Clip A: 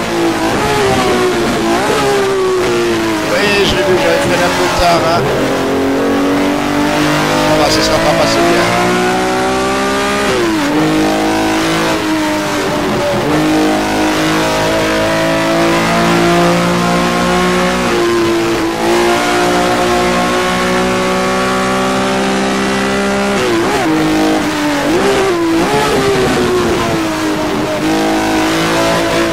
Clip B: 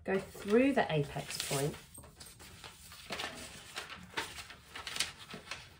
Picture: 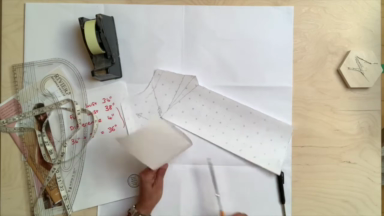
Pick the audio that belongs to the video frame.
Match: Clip B